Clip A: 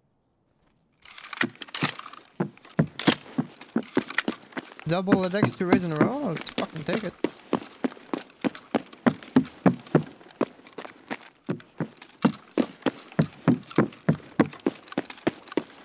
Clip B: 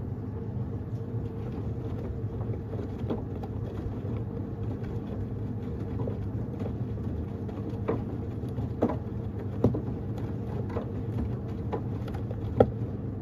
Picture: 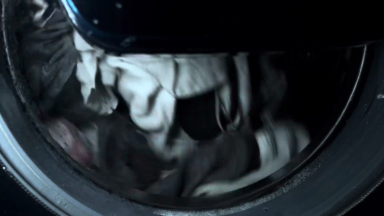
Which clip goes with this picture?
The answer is B